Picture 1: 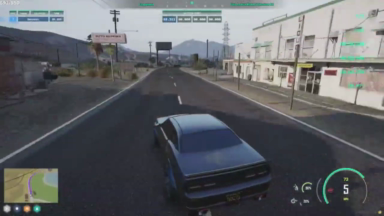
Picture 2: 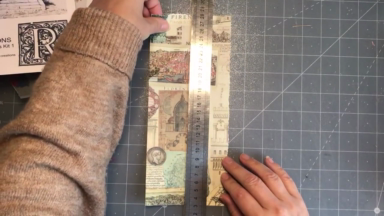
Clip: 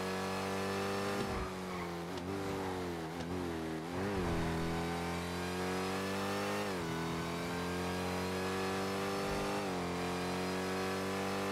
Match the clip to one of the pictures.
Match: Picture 1